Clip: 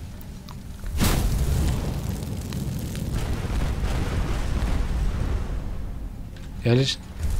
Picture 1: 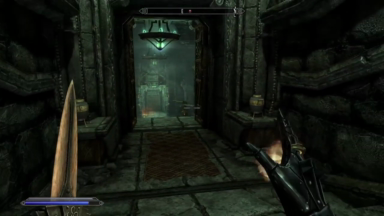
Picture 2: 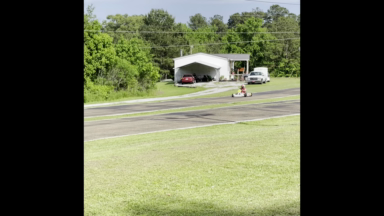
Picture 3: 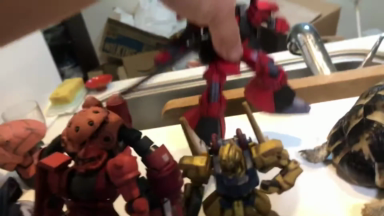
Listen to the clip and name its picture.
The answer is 1